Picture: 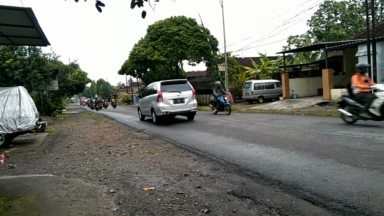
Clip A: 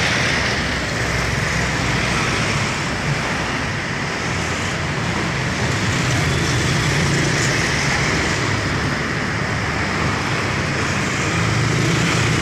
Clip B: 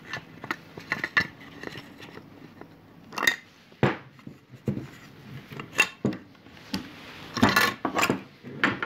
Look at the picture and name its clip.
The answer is A